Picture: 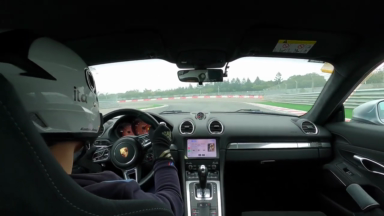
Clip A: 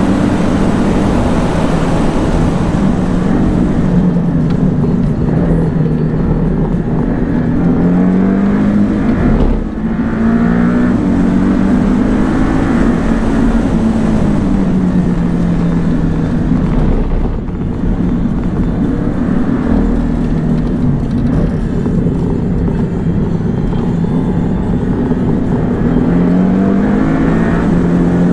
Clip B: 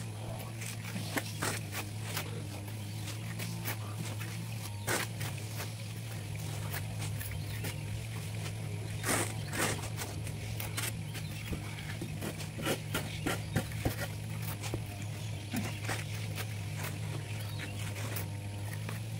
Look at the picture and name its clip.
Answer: A